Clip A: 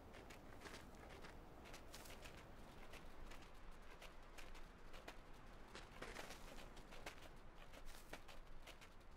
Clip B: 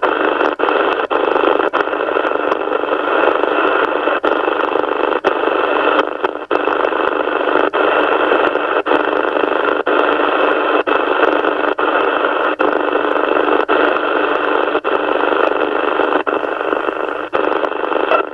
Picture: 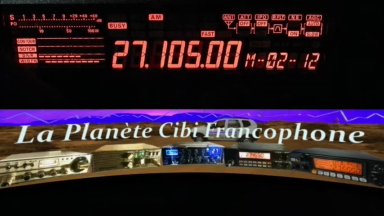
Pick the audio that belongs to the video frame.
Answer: B